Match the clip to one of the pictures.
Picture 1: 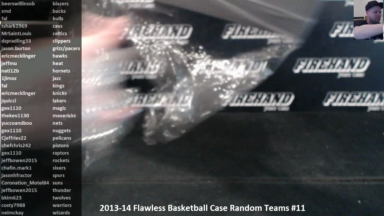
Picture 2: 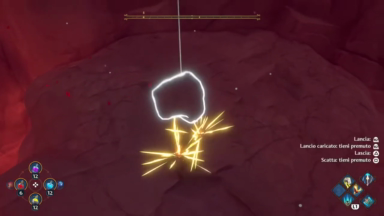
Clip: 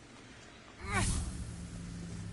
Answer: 2